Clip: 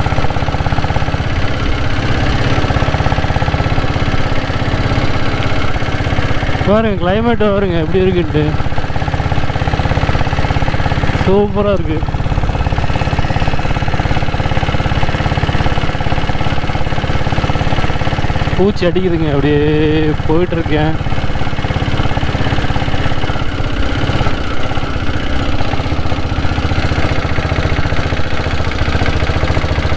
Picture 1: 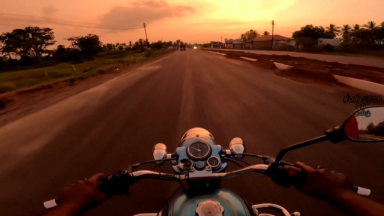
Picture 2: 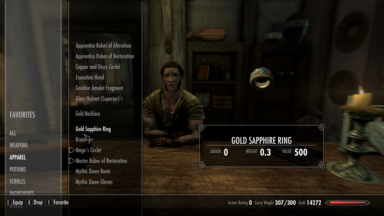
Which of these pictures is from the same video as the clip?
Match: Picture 1